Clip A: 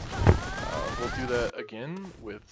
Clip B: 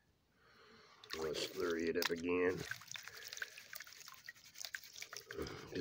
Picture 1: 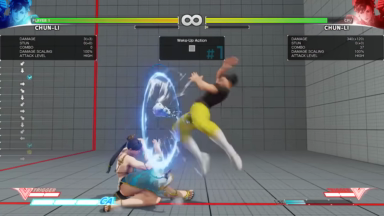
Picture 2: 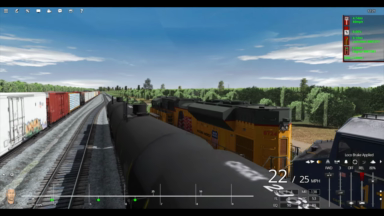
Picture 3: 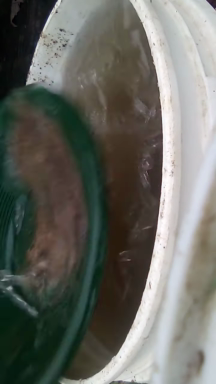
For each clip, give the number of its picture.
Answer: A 1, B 3